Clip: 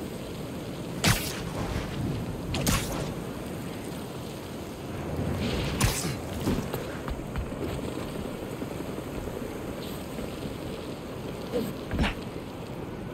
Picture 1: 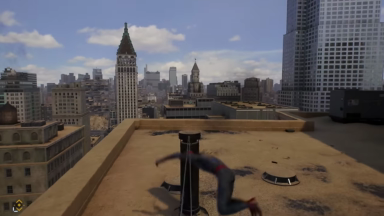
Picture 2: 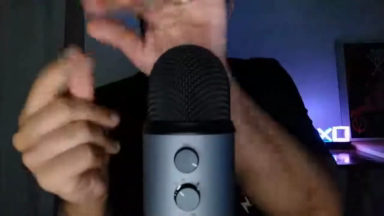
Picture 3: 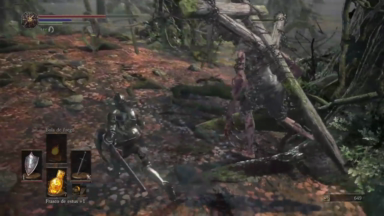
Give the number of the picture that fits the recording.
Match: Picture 1